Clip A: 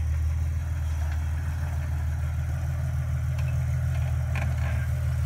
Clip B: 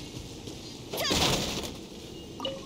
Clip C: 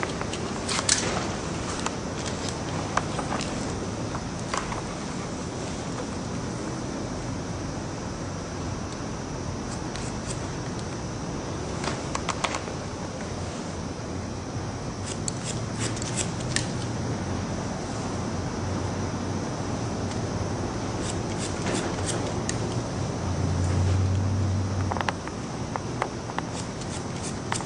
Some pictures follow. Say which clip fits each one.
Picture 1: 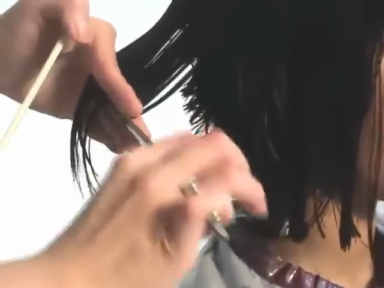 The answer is C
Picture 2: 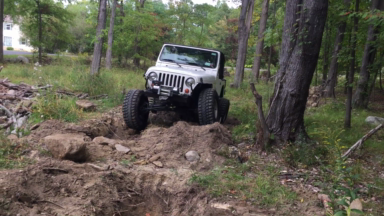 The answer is A